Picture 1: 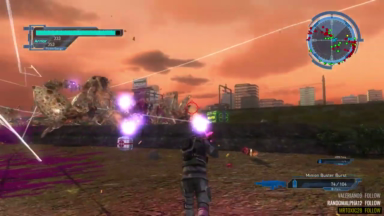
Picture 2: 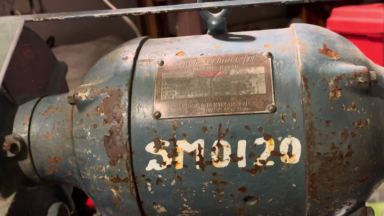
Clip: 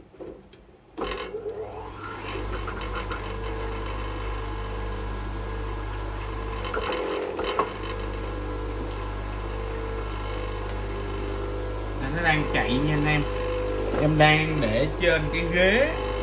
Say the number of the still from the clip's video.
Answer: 2